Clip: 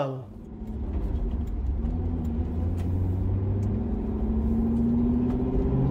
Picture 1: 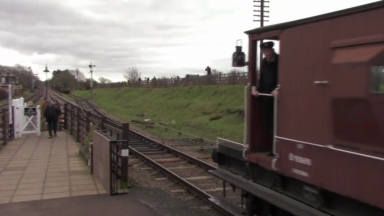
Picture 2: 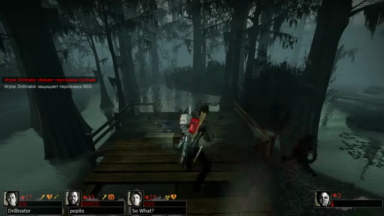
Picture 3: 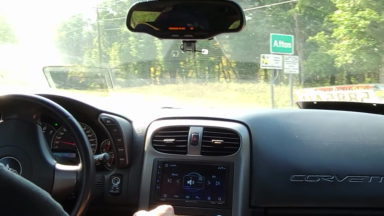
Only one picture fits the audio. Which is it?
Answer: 3